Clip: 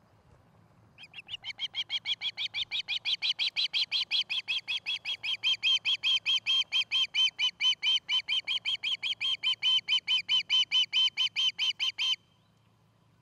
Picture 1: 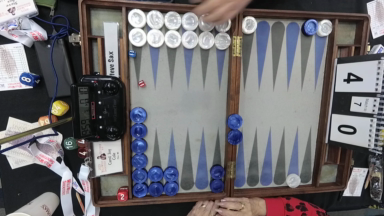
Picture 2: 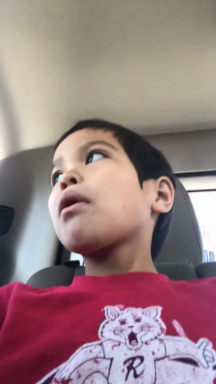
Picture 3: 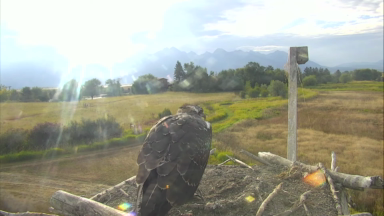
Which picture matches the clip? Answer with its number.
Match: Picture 3